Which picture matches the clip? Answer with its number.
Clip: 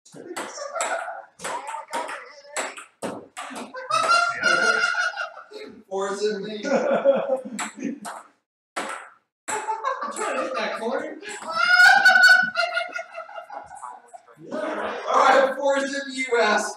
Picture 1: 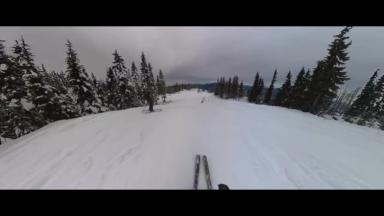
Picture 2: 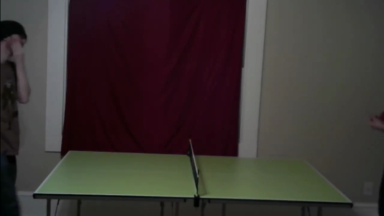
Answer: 2